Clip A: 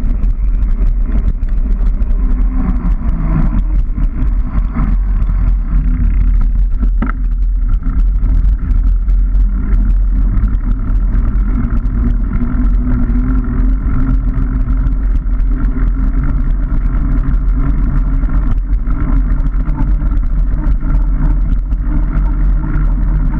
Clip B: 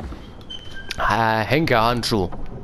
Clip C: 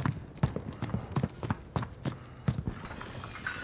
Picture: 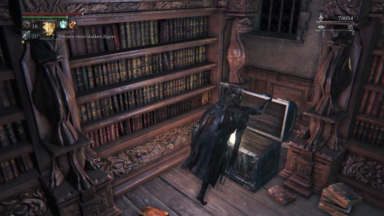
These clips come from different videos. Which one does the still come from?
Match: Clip B